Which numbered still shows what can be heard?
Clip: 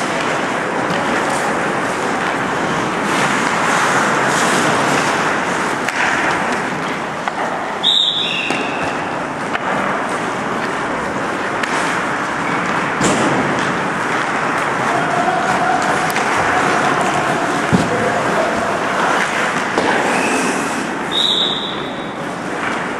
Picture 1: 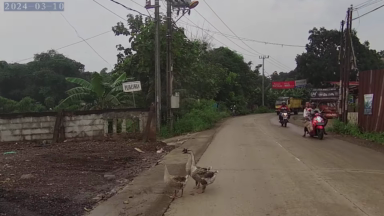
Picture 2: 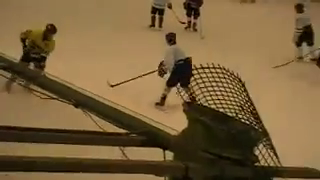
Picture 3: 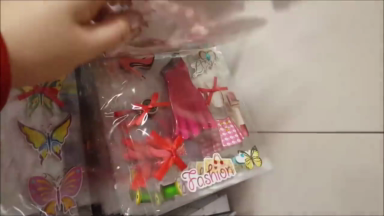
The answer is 2